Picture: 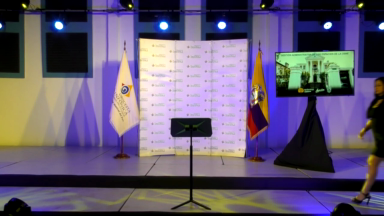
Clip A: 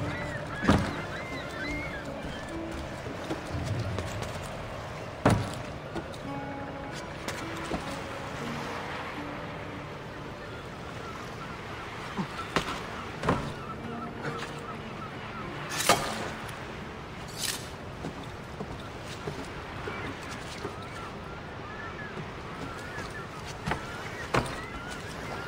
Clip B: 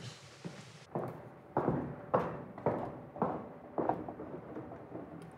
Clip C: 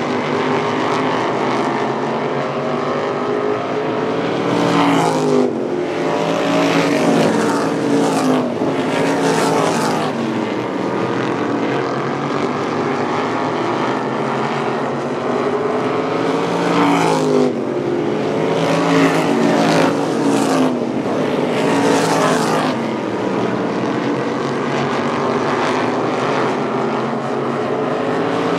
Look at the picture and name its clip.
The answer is B